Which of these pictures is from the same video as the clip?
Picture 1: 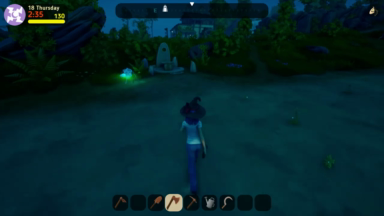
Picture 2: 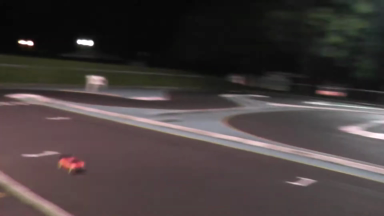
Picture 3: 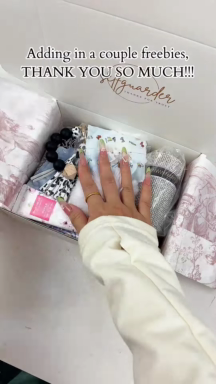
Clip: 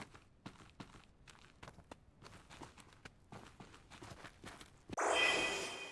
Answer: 1